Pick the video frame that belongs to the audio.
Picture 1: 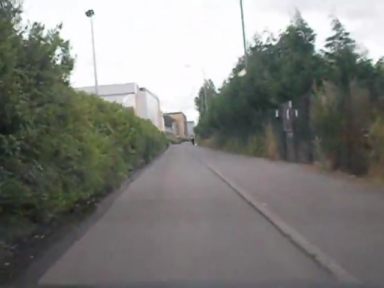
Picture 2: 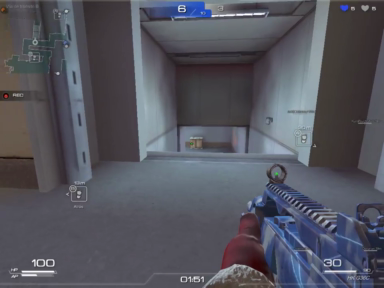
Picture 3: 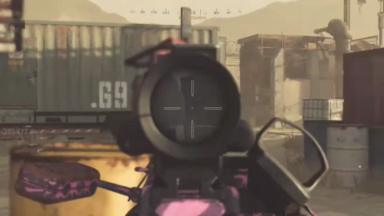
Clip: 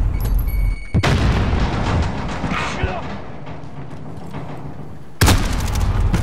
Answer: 3